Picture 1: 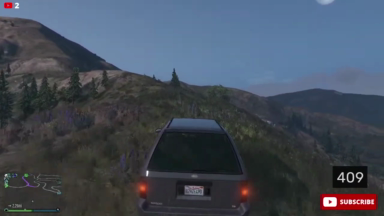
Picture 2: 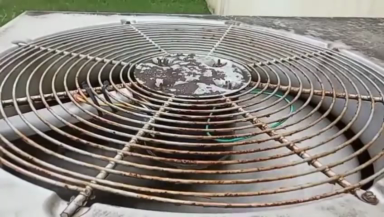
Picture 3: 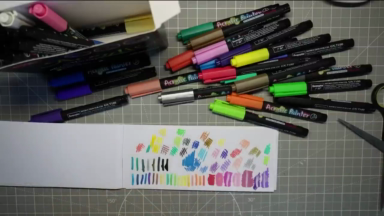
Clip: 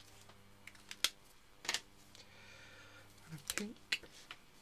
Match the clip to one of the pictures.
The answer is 3